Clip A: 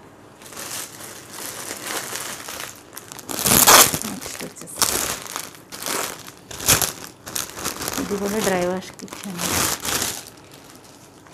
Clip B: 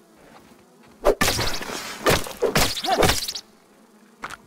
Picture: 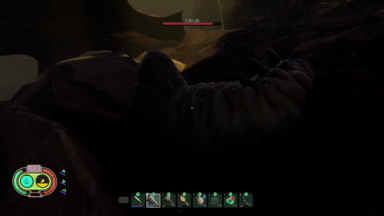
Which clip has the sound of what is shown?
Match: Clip B